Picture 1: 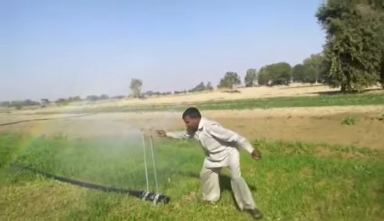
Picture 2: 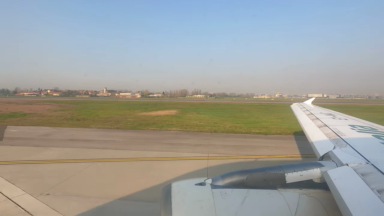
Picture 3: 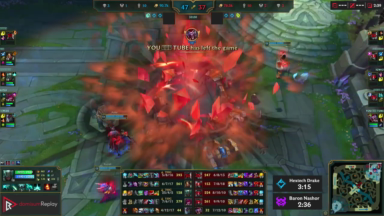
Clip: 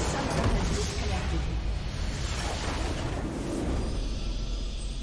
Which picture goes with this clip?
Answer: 3